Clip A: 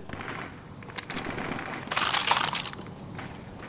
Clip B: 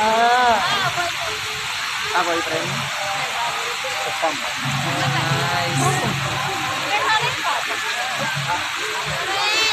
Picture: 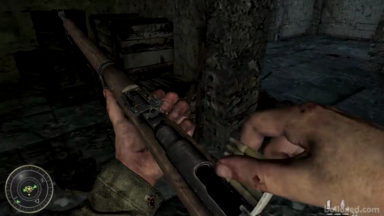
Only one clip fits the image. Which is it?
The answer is A